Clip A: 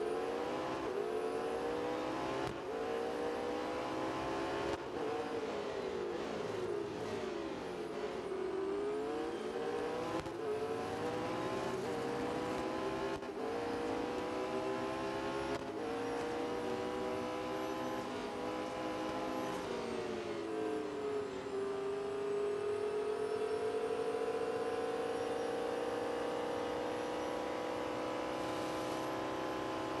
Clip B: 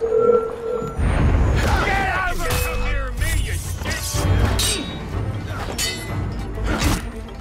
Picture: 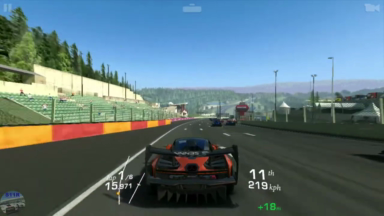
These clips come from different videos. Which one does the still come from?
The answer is A